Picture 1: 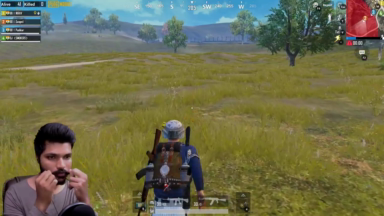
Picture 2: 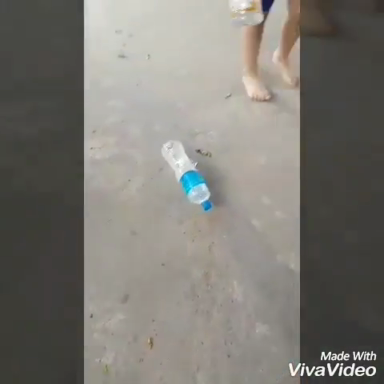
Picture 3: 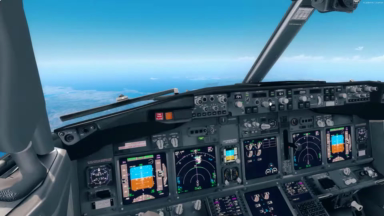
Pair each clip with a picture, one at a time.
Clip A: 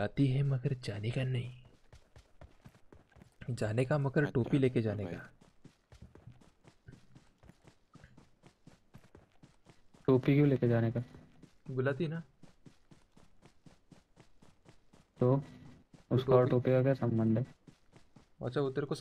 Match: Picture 1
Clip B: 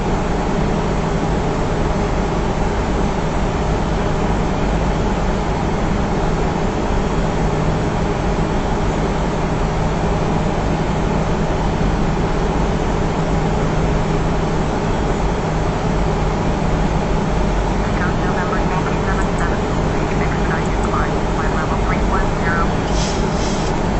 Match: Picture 3